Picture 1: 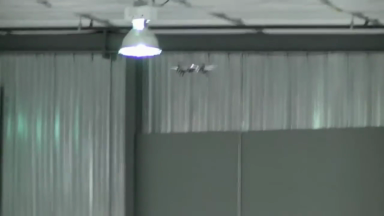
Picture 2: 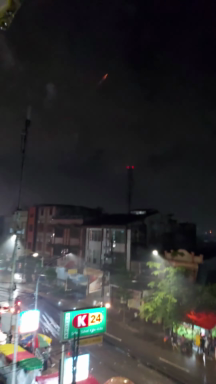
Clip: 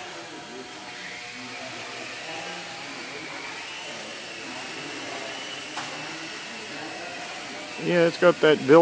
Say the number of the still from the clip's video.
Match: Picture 1